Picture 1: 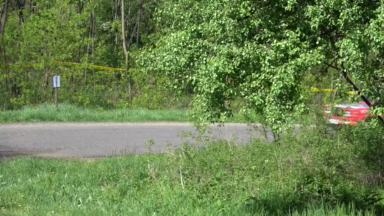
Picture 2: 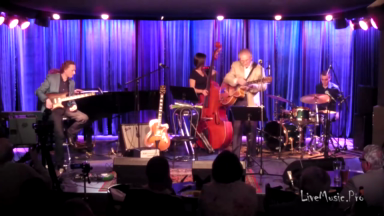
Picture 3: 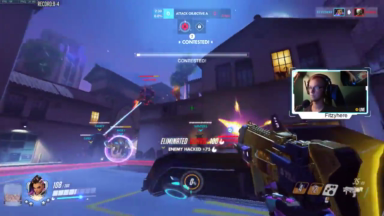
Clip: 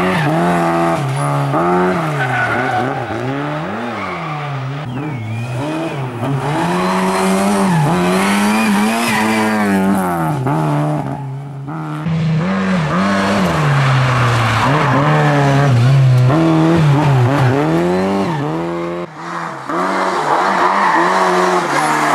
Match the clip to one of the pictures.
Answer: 1